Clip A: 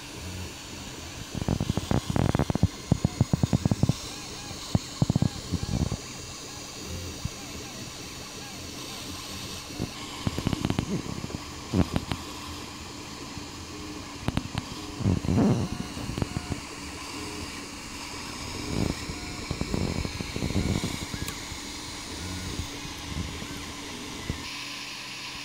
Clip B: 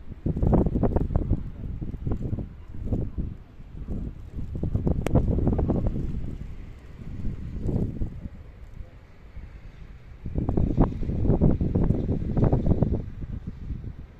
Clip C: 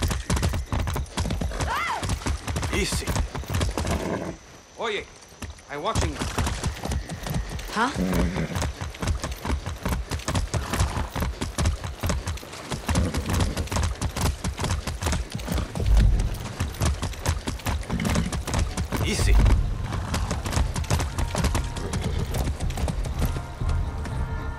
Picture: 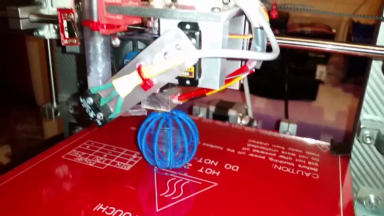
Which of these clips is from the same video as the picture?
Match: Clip A